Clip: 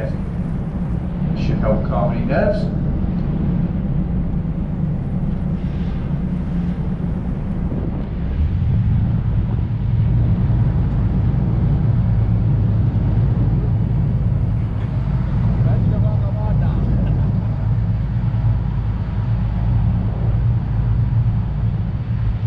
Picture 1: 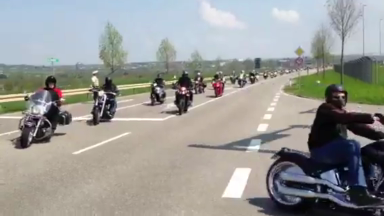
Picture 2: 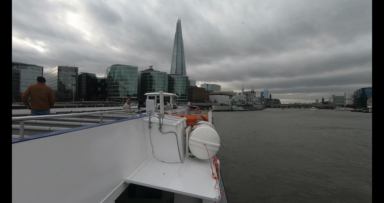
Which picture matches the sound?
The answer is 2